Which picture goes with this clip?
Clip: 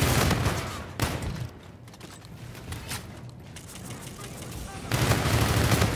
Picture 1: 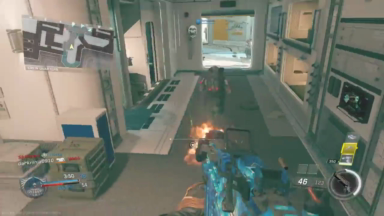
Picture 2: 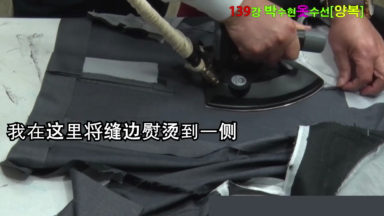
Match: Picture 1